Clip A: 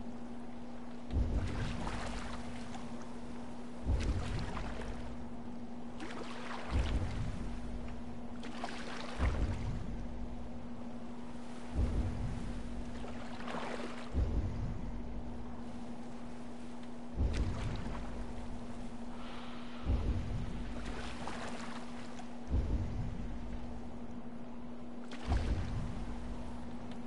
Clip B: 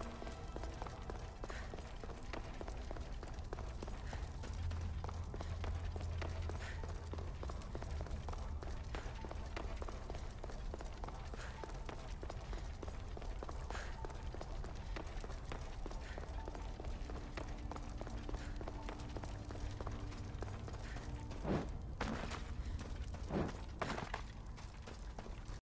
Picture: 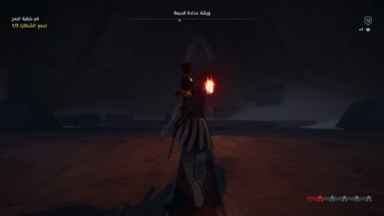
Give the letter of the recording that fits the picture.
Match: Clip B